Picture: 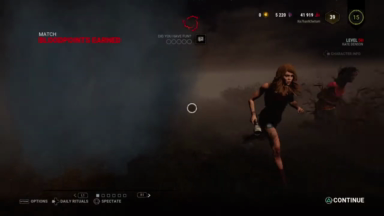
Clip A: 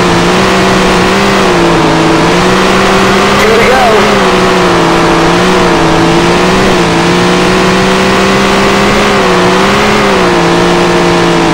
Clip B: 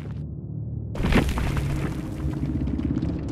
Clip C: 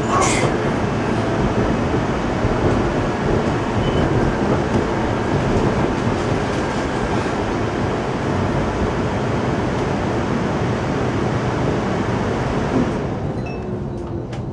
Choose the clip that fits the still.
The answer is B